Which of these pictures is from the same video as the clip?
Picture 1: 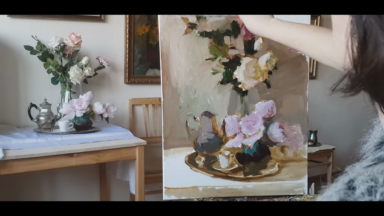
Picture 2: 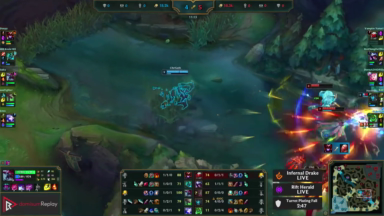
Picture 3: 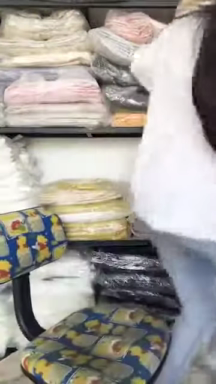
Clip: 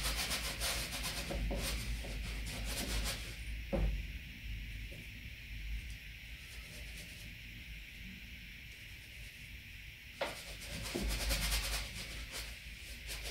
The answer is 1